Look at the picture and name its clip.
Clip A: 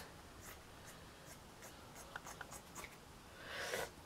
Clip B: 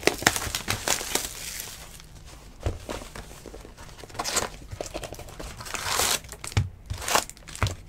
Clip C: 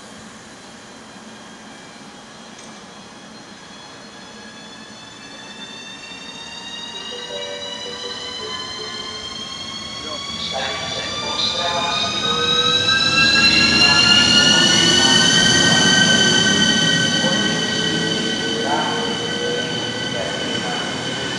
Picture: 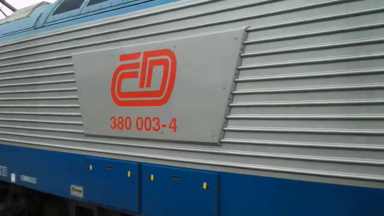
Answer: C